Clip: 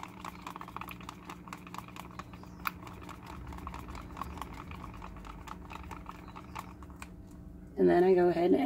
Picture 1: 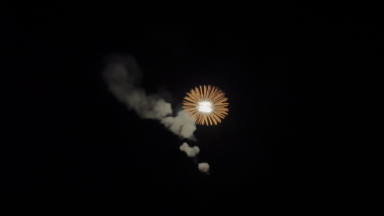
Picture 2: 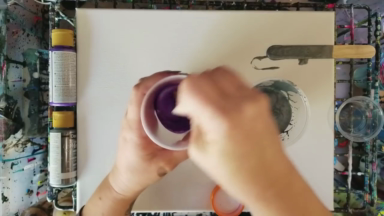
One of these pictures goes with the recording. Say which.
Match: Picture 2